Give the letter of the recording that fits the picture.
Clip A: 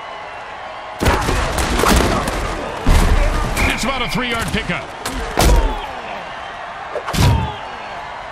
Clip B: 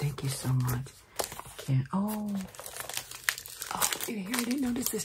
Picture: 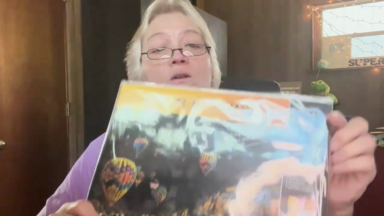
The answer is B